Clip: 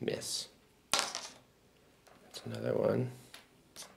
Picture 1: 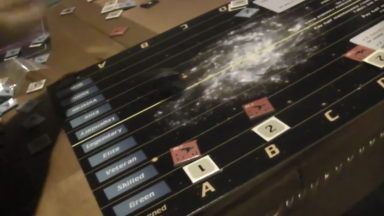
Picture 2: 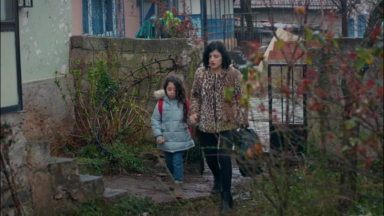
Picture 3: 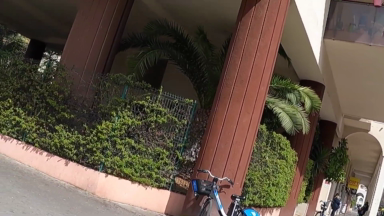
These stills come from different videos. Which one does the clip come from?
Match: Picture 1